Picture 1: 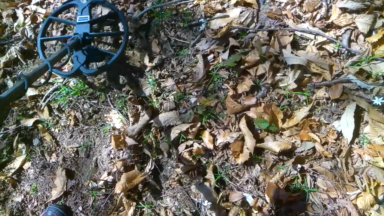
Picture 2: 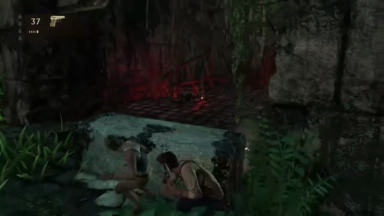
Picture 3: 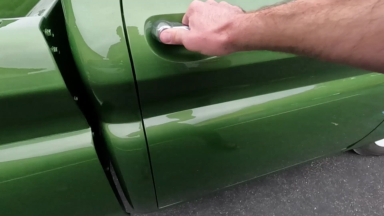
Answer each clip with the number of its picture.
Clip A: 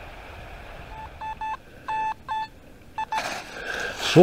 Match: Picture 1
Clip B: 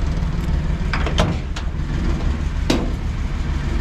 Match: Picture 3